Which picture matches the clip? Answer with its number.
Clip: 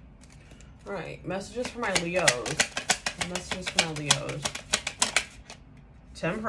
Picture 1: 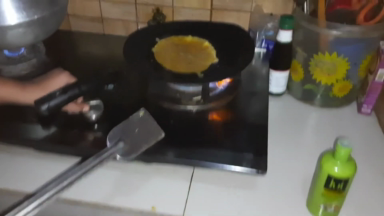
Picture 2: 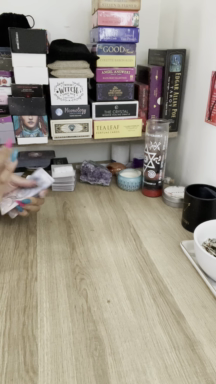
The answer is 2